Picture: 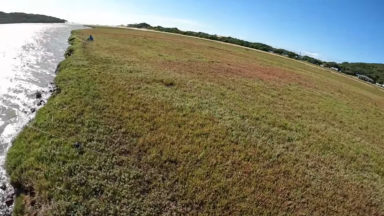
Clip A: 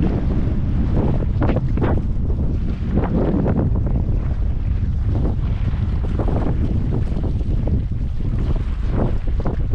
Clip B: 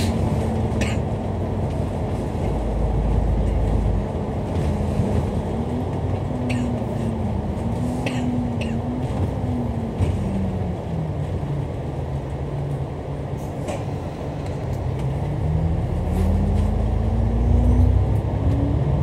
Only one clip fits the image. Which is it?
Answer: A